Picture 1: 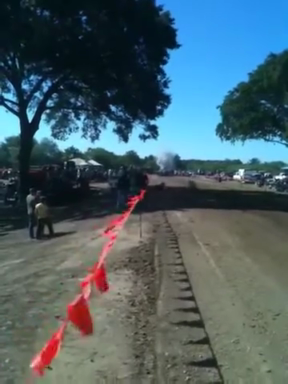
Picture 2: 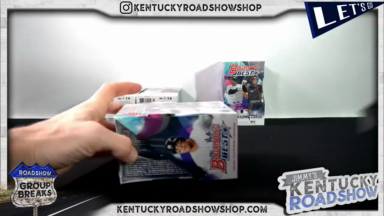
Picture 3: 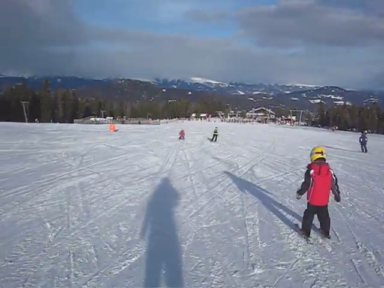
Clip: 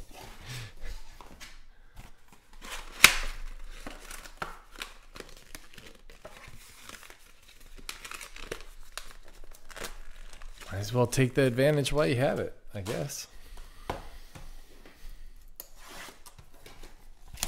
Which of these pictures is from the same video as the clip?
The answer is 2